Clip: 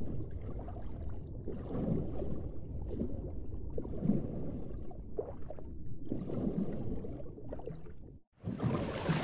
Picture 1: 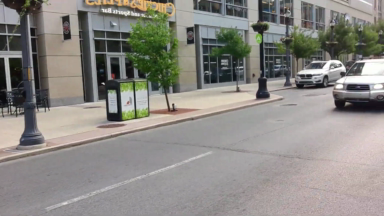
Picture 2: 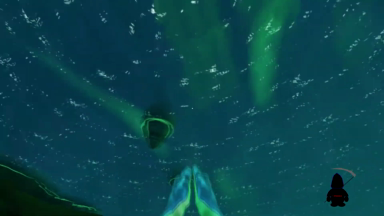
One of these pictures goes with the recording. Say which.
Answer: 2